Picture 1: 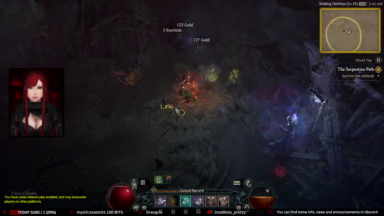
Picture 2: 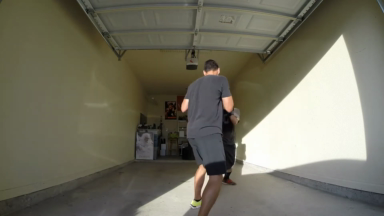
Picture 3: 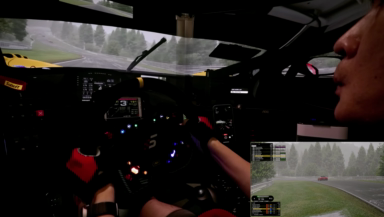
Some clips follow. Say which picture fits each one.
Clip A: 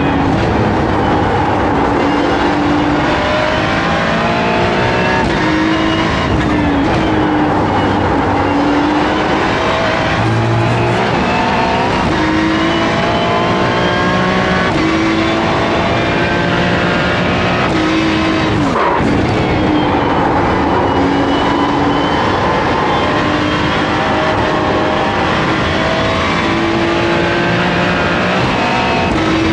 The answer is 3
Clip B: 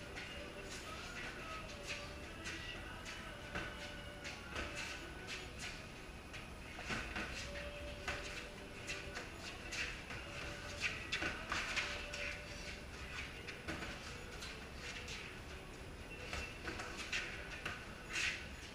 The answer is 2